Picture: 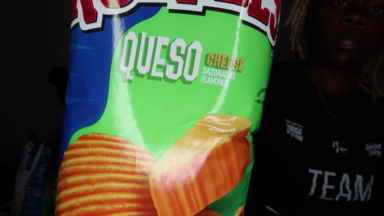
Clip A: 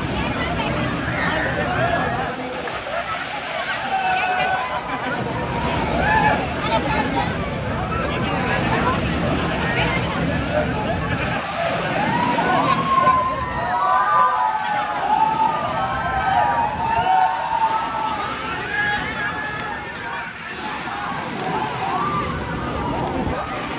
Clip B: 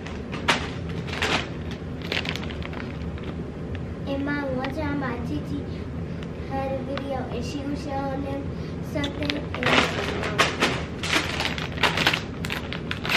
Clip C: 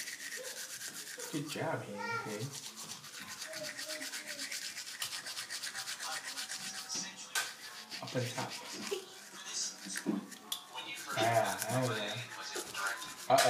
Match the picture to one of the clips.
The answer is B